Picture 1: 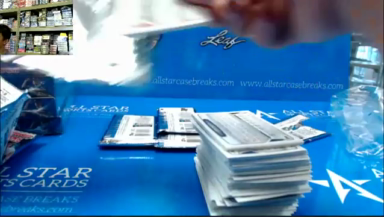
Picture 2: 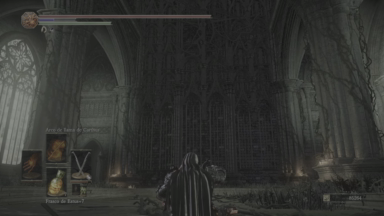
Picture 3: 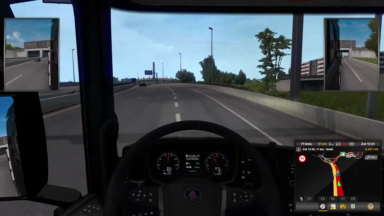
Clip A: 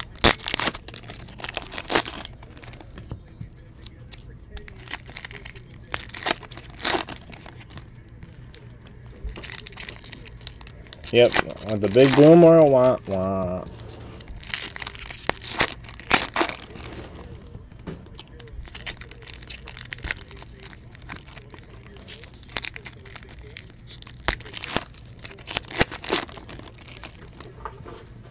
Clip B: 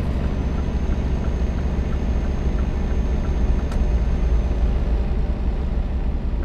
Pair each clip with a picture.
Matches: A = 1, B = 3